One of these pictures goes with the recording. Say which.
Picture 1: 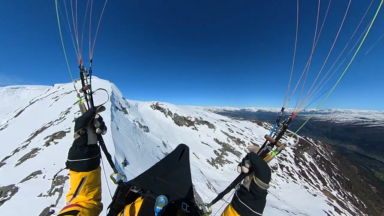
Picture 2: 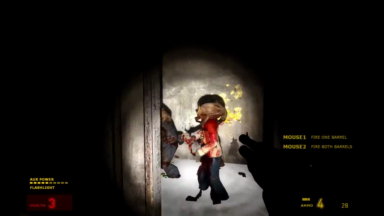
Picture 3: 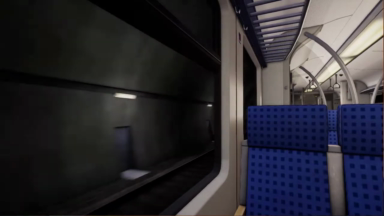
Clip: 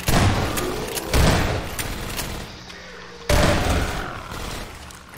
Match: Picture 2